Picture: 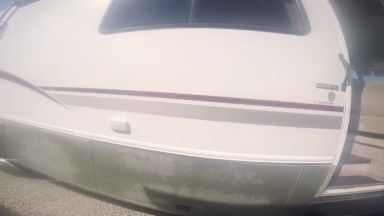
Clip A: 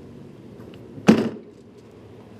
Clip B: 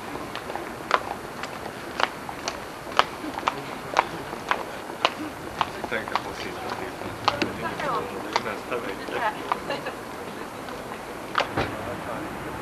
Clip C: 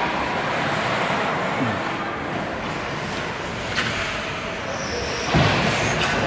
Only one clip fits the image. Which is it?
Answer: A